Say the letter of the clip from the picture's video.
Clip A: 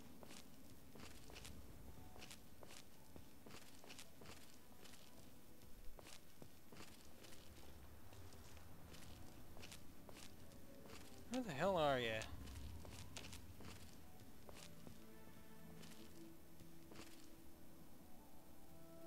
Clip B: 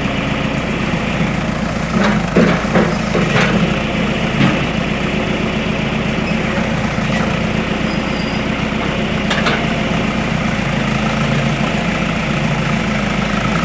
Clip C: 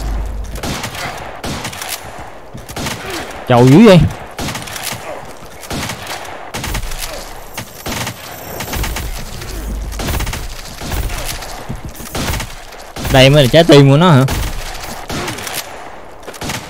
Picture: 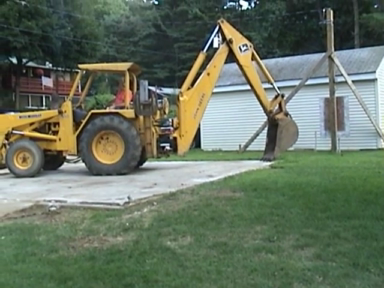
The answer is B